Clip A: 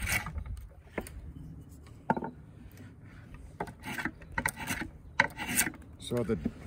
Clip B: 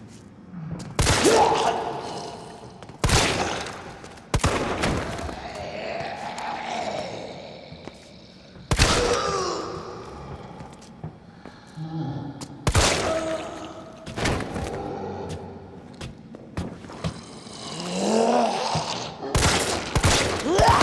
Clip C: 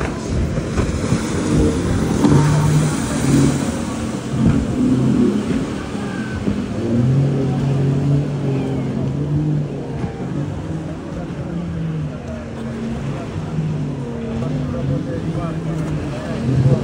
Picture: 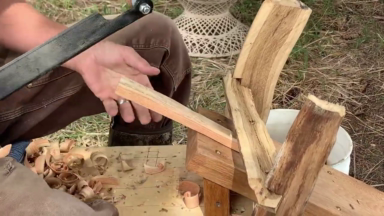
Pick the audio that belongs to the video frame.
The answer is A